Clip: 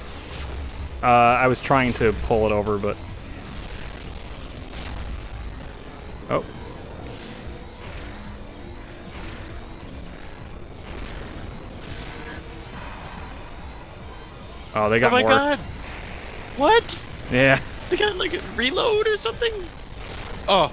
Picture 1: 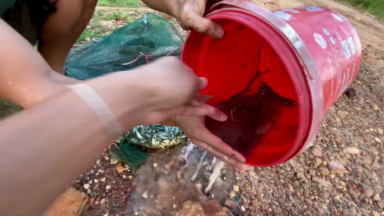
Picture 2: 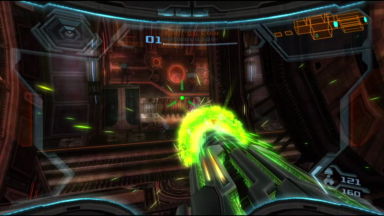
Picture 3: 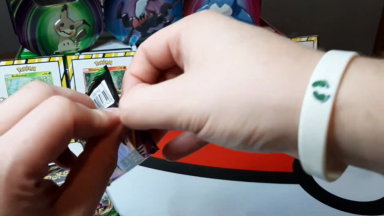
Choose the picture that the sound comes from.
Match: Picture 2